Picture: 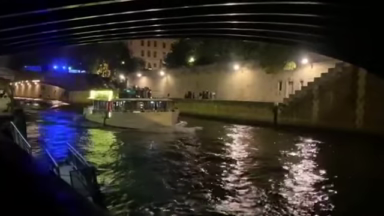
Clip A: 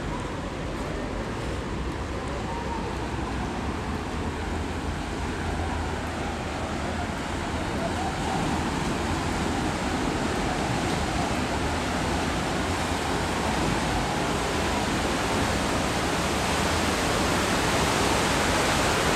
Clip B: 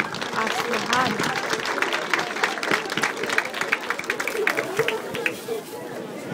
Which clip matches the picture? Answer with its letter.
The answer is A